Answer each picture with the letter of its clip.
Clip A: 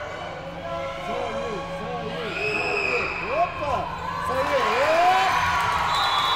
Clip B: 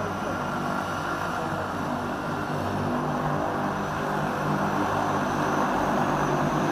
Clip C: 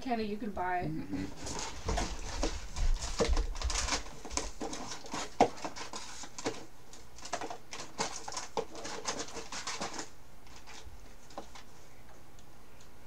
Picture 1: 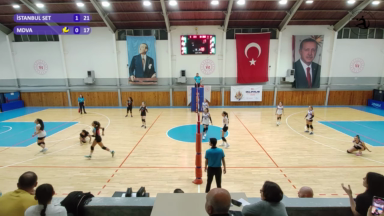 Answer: A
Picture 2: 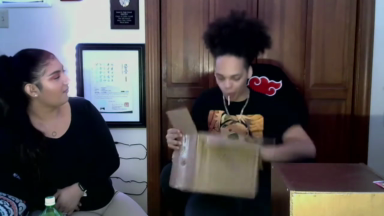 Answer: C